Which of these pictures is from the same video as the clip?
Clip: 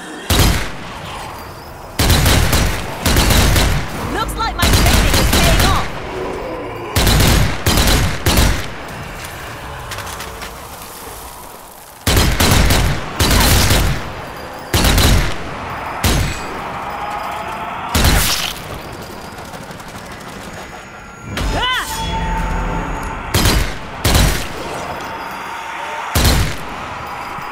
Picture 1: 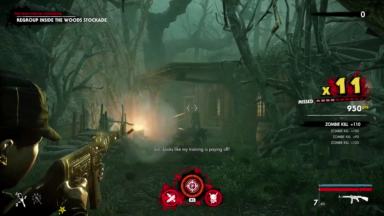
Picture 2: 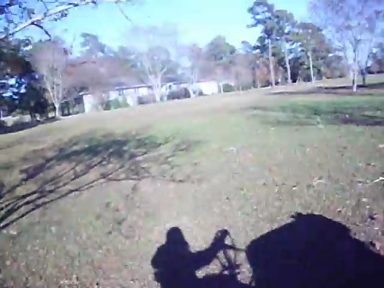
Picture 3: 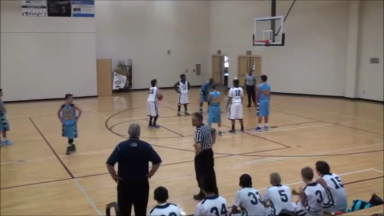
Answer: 1